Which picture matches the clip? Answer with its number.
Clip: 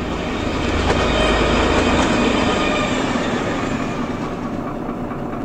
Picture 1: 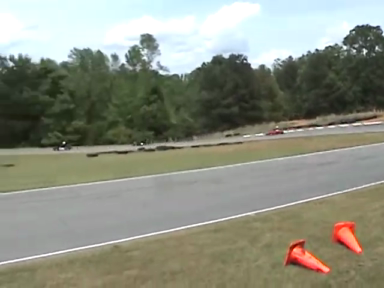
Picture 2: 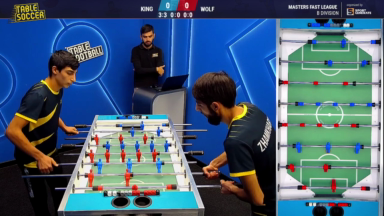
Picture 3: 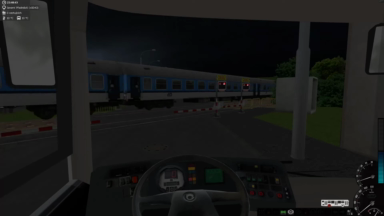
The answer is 3